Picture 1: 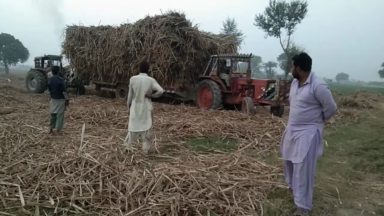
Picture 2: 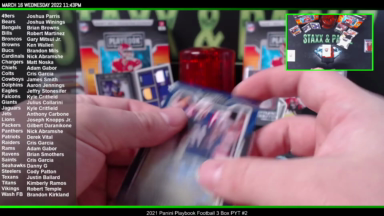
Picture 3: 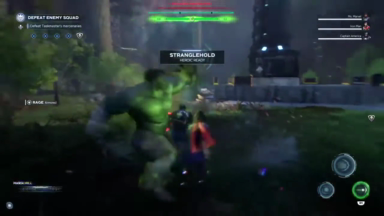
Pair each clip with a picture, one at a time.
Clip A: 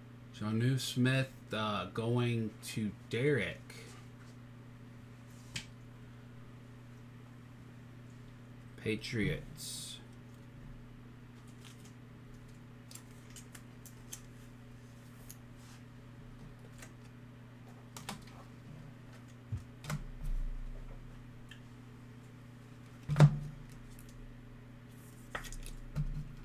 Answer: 2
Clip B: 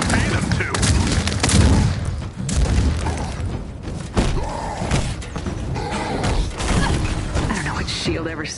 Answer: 3